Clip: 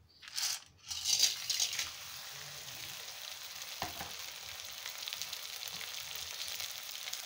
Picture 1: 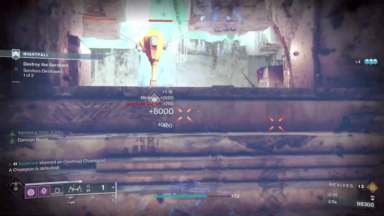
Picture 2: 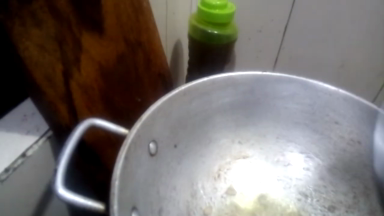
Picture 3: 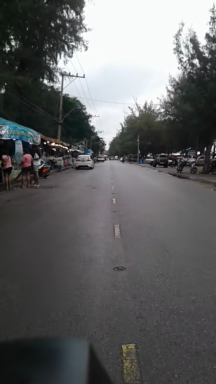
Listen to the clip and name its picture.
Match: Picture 2